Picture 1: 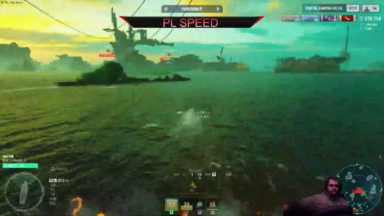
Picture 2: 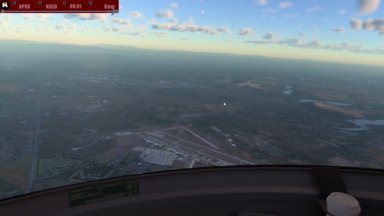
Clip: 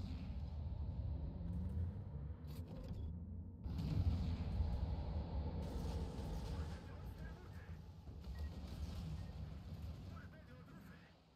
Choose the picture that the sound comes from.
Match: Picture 1